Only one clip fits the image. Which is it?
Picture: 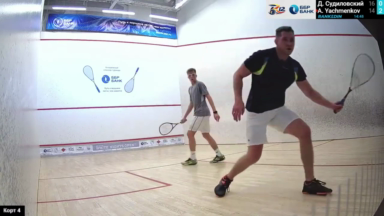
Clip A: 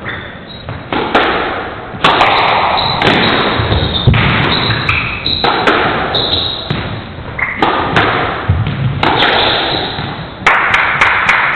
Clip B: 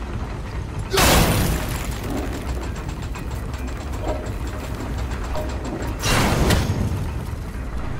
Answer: A